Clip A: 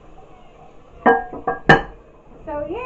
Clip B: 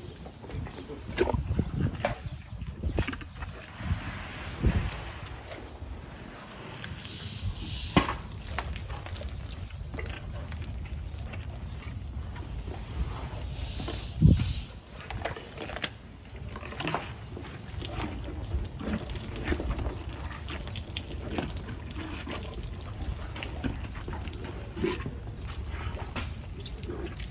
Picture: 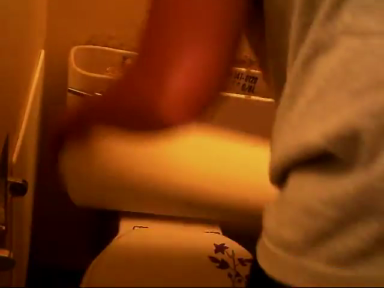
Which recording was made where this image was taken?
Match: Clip A